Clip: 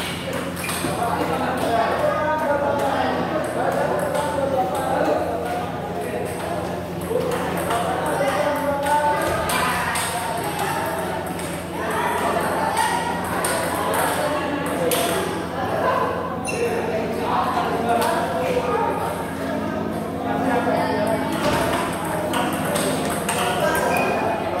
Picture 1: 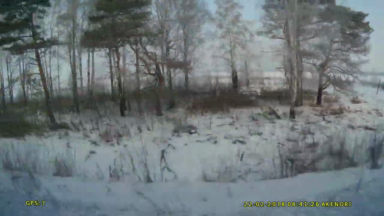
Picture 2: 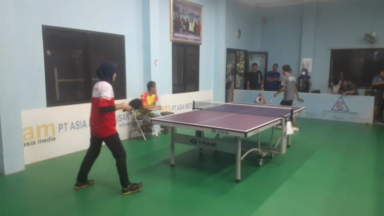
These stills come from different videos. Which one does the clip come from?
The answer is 2